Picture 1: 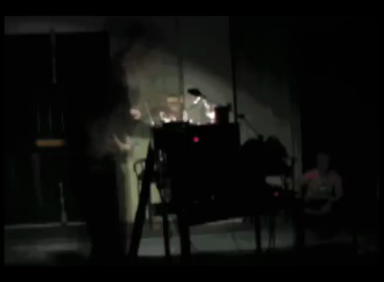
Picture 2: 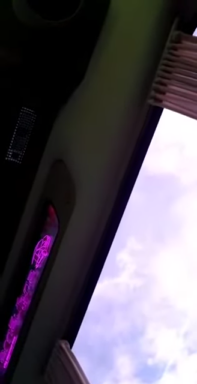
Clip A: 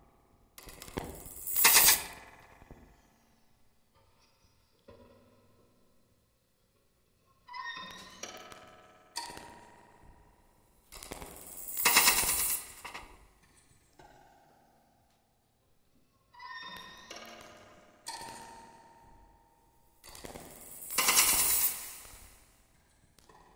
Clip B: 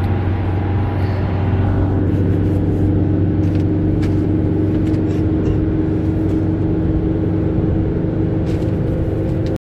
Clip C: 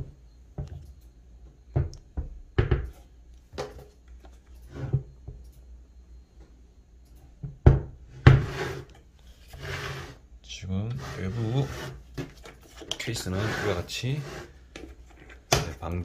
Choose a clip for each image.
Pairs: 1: A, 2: B